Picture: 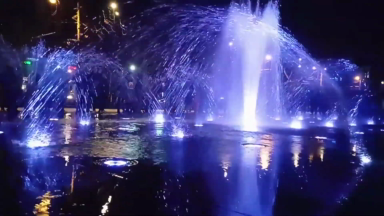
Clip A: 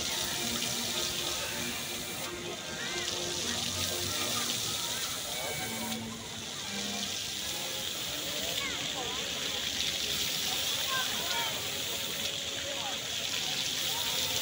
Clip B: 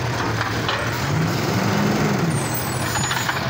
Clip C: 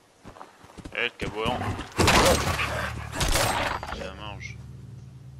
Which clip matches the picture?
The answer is A